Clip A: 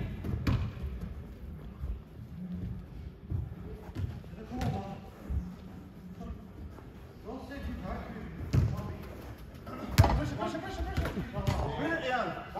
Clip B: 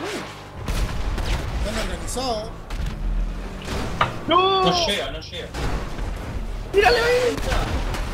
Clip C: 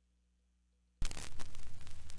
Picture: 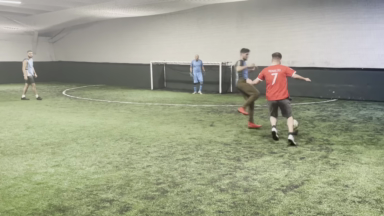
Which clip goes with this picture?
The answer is A